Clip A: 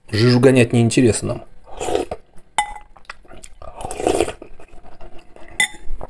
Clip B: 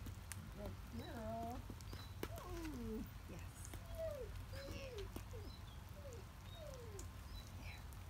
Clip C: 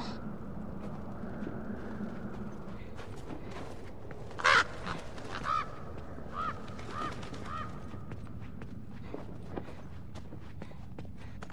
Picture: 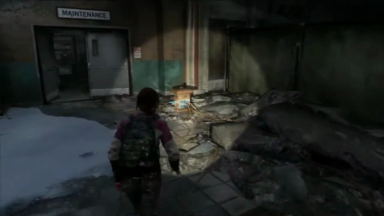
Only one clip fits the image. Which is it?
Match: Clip C